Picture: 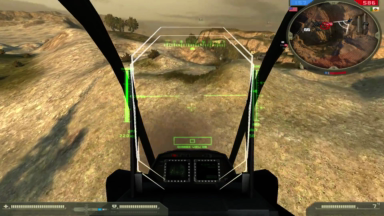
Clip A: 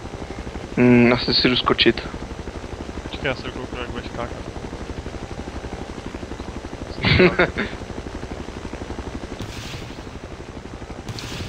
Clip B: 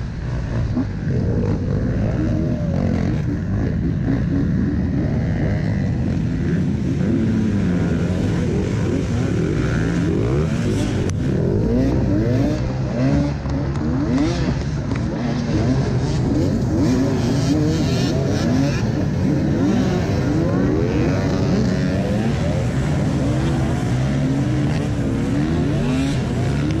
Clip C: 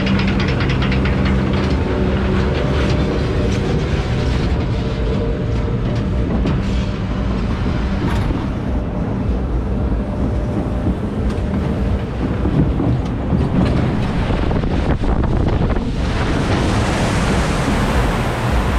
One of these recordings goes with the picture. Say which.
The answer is A